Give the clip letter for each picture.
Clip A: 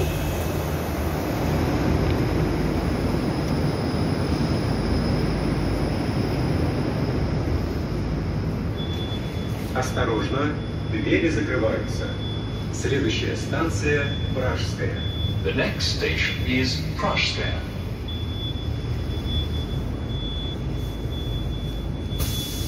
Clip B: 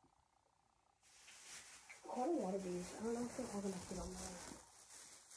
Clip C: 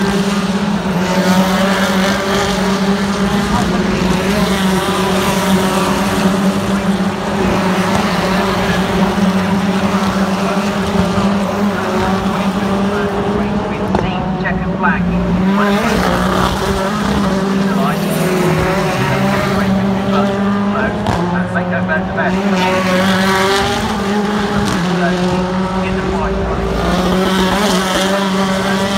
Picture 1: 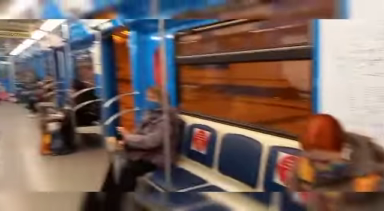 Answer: A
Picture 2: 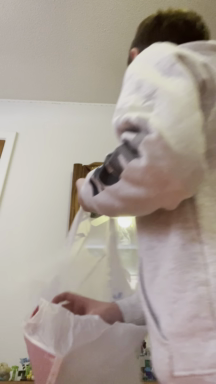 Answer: B